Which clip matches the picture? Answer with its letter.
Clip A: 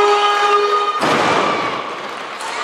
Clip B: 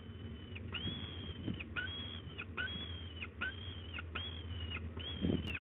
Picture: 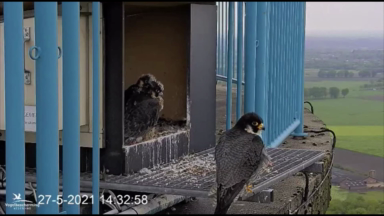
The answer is B